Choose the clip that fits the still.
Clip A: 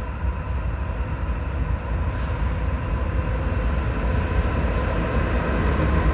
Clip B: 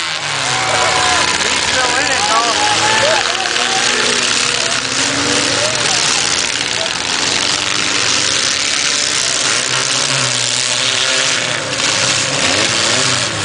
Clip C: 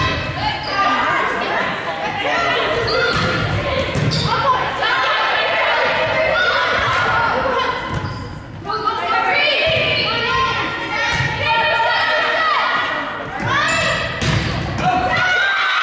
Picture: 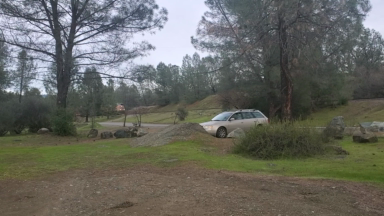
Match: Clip A